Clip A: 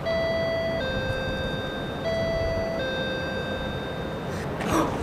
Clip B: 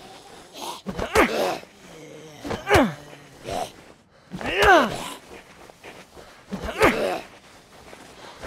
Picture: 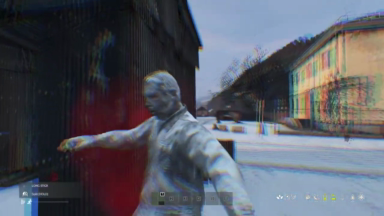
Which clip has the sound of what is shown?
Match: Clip B